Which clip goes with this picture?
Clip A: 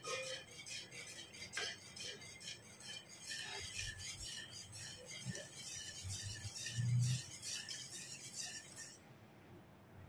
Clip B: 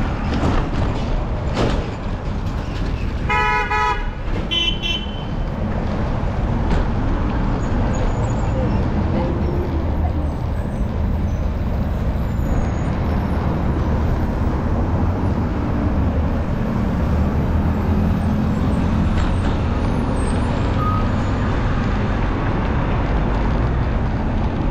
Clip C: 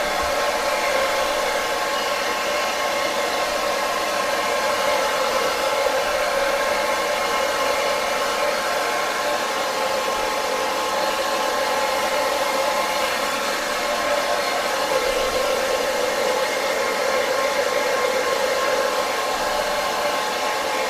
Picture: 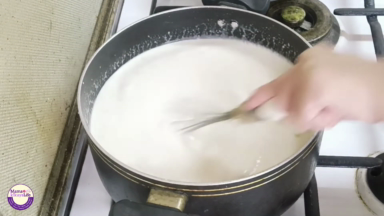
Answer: A